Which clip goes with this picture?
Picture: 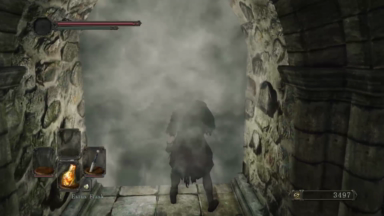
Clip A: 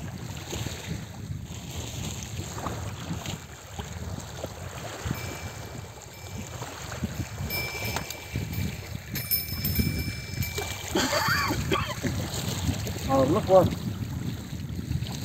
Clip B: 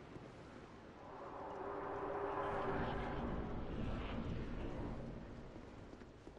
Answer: B